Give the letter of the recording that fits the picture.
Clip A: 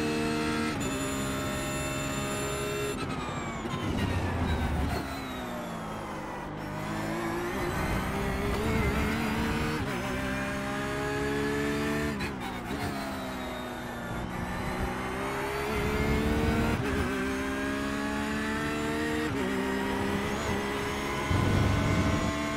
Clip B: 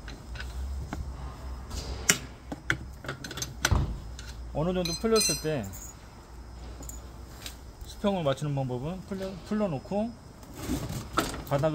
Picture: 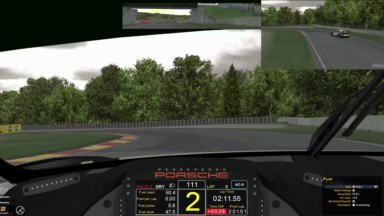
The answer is A